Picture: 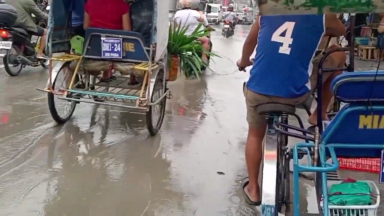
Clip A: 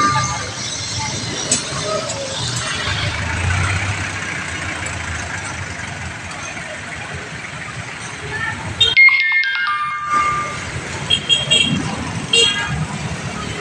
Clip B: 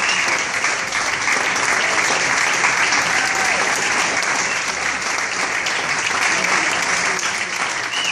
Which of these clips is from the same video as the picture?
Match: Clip A